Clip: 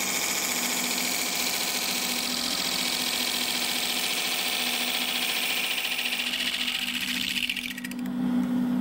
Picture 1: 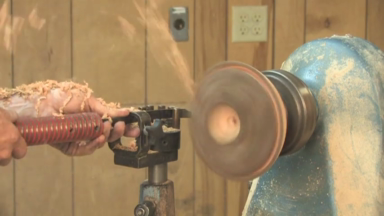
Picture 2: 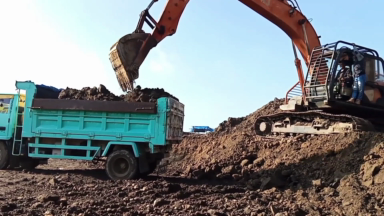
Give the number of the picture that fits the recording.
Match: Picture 1